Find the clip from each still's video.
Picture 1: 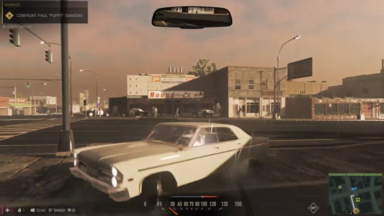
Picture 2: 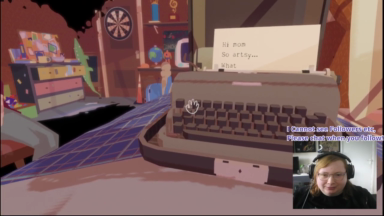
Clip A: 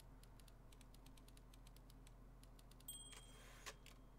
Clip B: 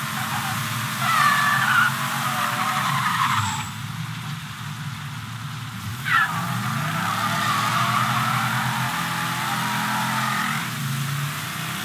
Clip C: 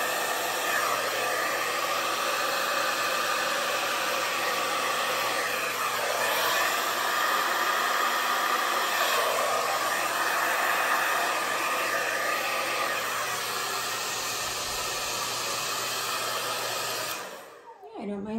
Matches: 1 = B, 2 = A